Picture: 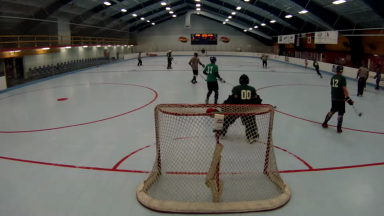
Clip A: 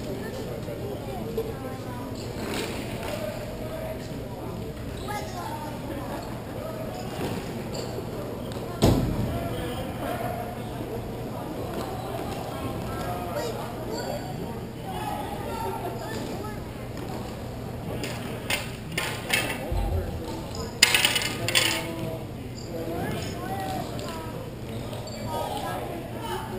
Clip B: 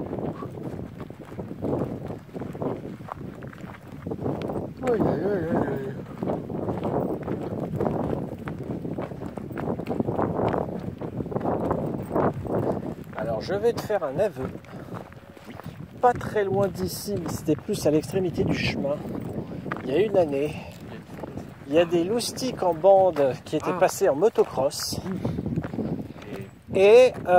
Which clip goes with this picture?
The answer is A